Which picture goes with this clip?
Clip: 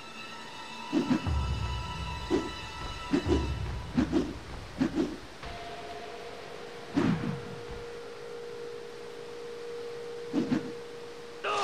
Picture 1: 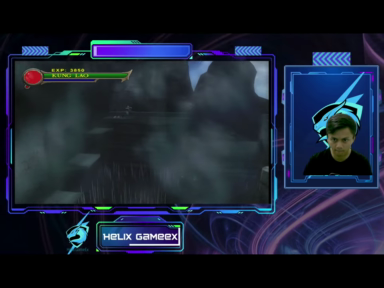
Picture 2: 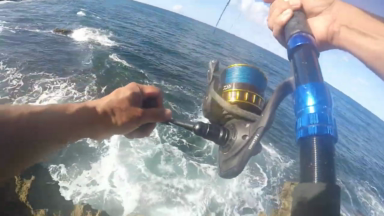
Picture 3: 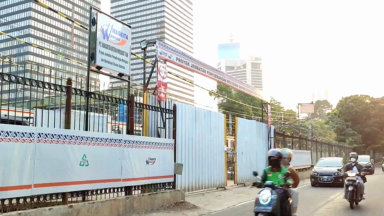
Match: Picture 1